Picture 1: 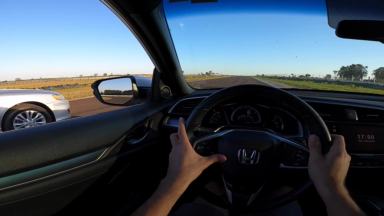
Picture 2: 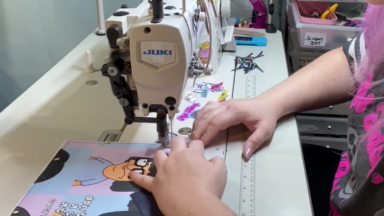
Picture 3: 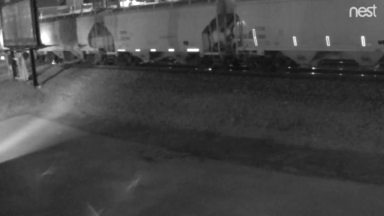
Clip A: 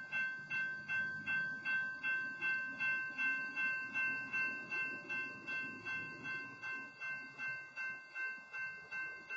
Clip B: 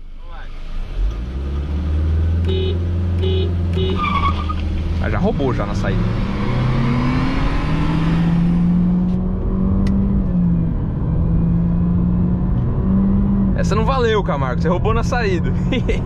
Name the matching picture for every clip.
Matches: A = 3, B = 1